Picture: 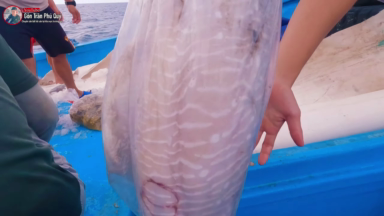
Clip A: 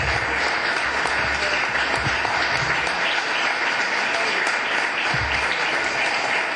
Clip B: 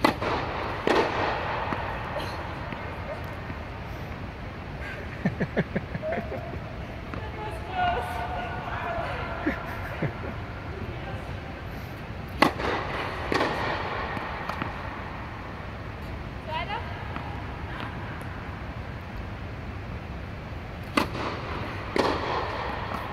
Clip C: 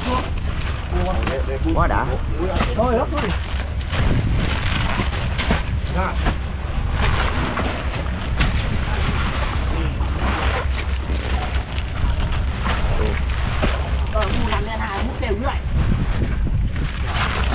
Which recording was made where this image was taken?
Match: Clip C